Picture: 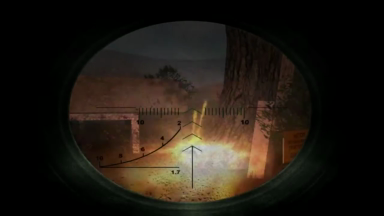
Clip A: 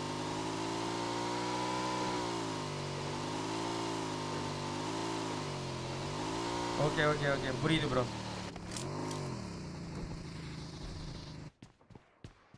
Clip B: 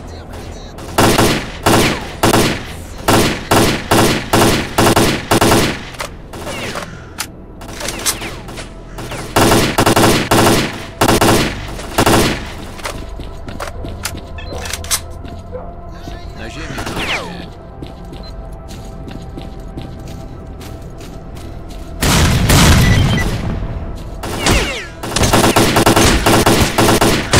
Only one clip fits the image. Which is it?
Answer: B